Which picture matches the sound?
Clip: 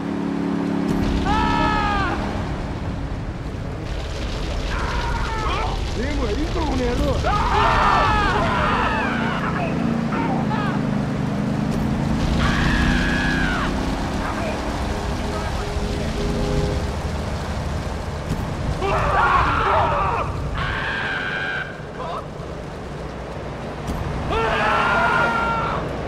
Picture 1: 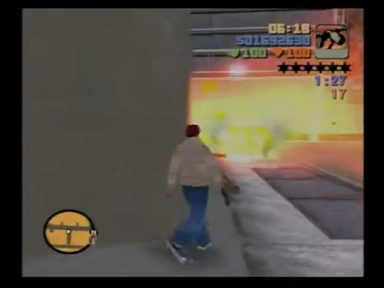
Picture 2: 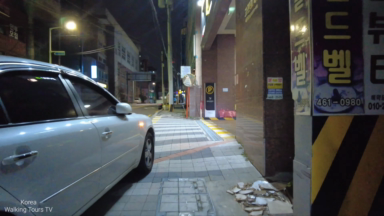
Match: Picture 1